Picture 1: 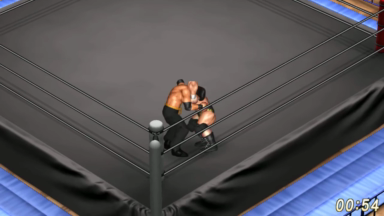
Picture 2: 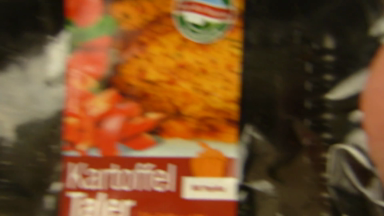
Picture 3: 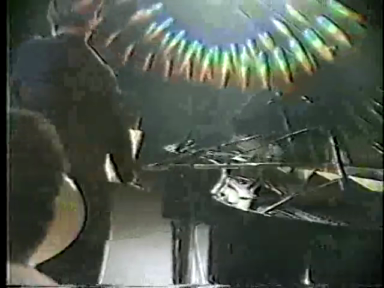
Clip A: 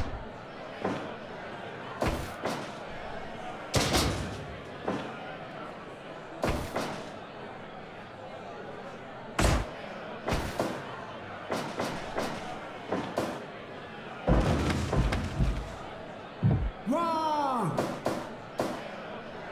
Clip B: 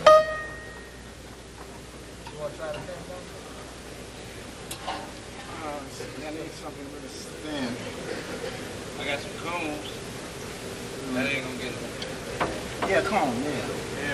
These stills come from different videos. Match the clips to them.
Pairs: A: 1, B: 3